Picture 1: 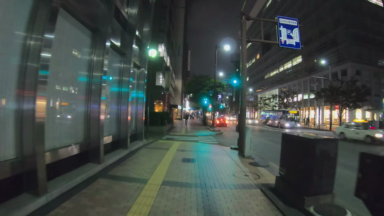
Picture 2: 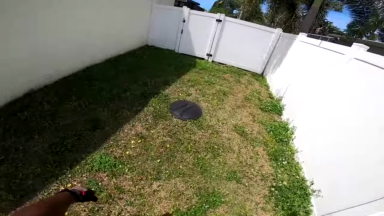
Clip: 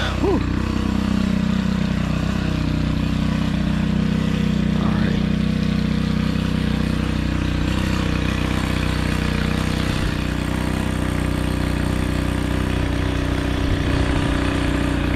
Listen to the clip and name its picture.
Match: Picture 2